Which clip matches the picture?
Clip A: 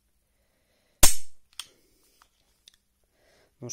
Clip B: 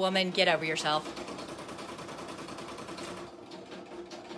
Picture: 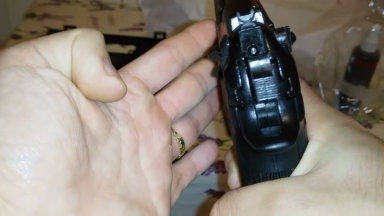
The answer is A